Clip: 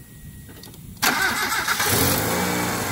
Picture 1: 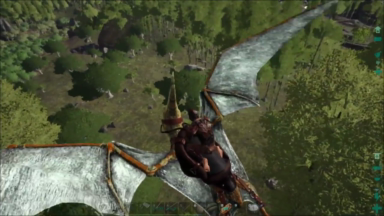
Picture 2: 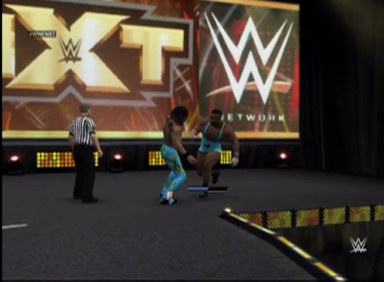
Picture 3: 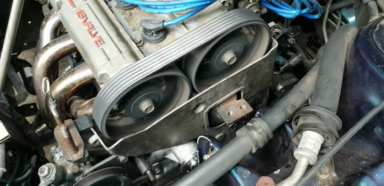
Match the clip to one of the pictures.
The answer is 3